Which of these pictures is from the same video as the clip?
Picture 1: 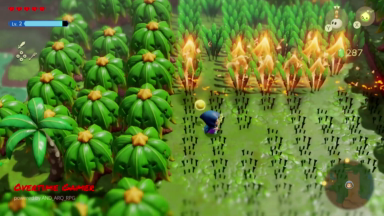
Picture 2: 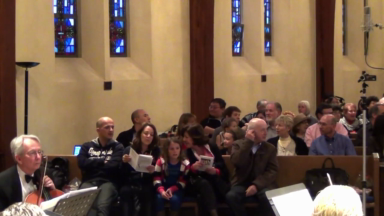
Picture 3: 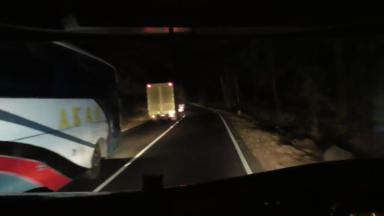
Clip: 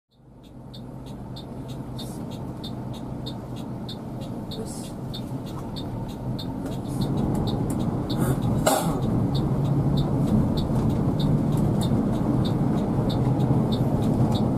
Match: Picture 3